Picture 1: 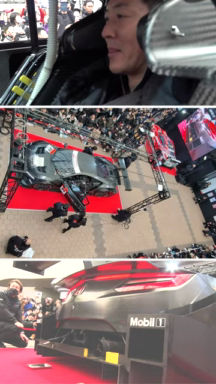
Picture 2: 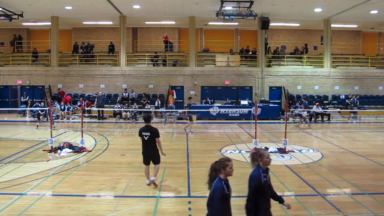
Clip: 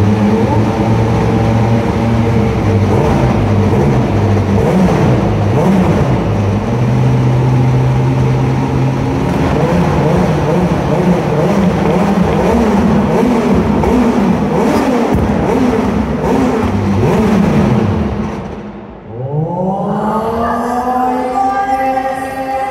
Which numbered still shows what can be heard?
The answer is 1